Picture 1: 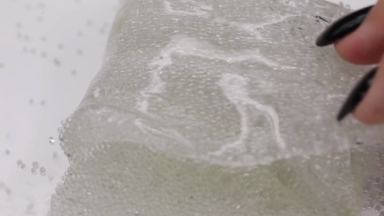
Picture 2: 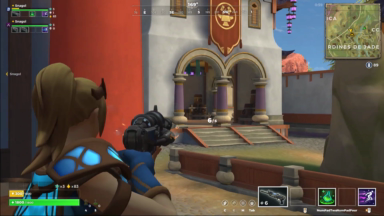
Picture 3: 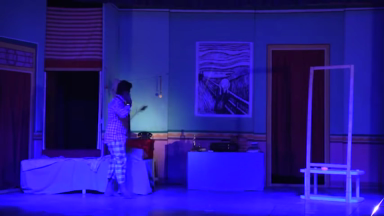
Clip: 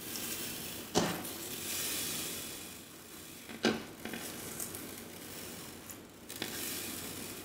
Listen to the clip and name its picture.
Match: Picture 1